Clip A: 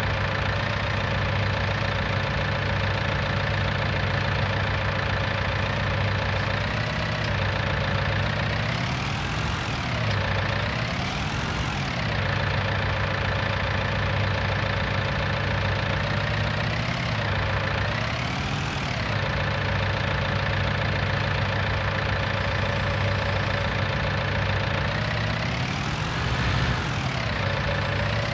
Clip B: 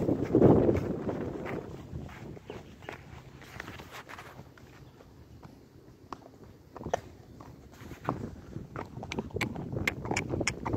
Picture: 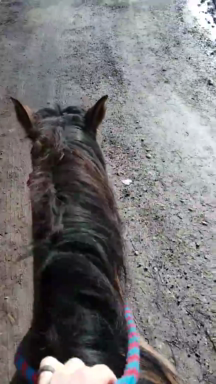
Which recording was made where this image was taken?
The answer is B